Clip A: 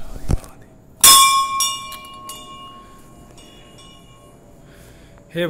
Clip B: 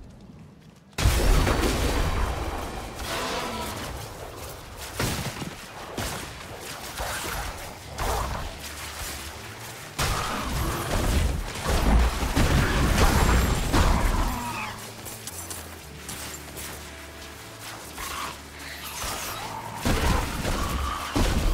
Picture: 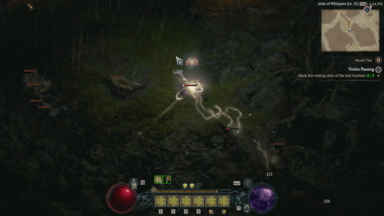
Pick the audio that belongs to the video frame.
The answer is B